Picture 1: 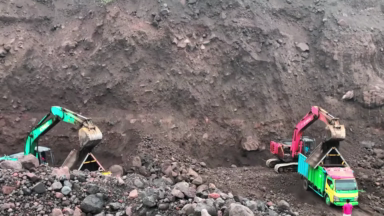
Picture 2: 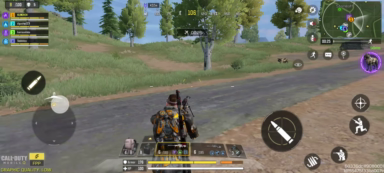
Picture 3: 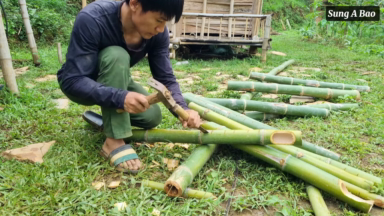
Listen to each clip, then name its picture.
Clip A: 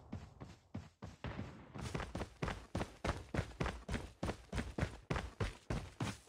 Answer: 2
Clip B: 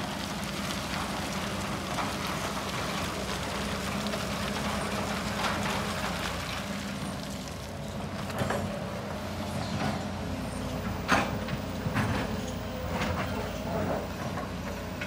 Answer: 1